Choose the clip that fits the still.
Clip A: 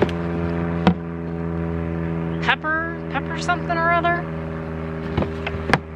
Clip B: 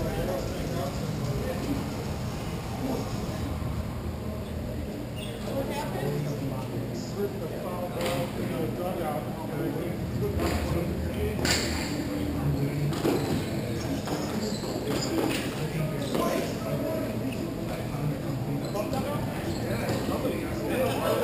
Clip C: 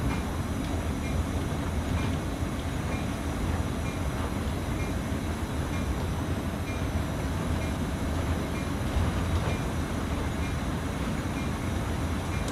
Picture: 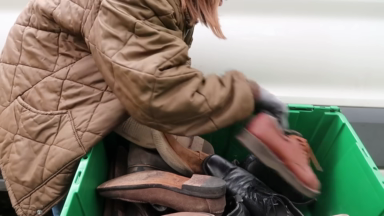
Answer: A